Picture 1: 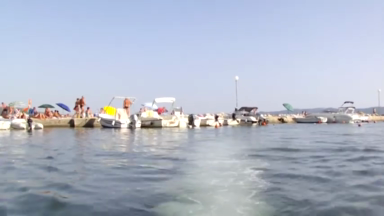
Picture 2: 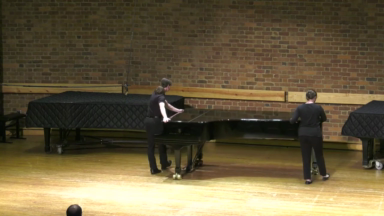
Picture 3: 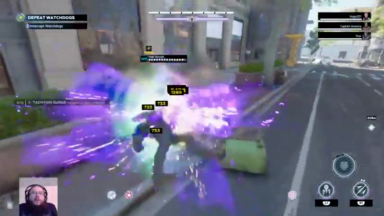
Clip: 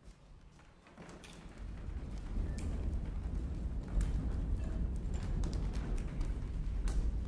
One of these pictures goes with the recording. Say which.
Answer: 2